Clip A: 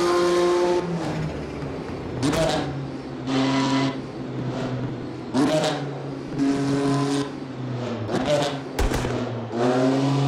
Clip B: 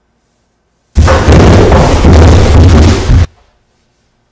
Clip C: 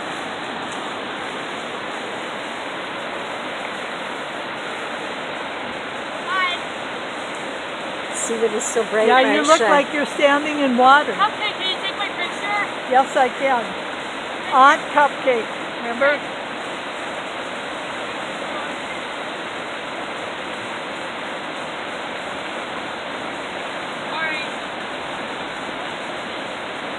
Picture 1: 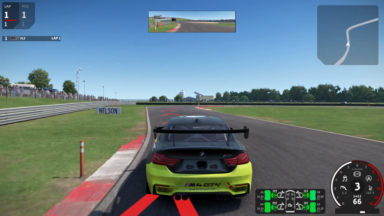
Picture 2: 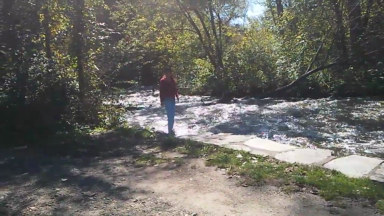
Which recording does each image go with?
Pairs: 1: A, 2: C